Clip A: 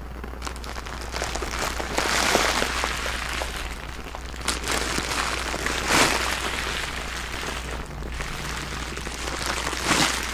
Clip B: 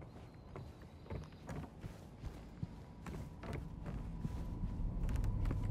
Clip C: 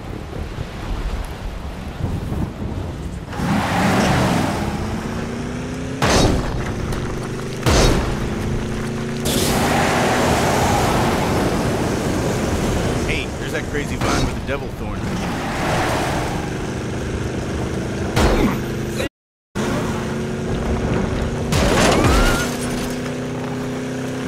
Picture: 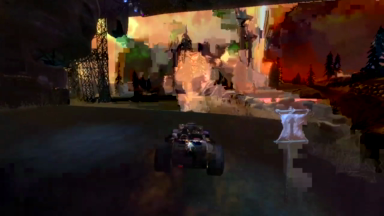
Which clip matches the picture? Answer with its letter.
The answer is C